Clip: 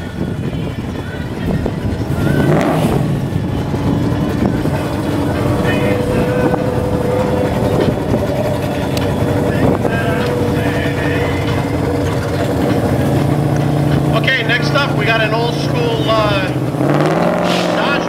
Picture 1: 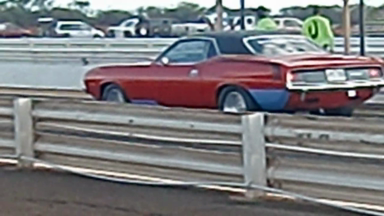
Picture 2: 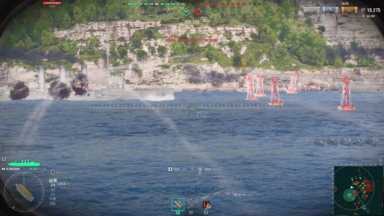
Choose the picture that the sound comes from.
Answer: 1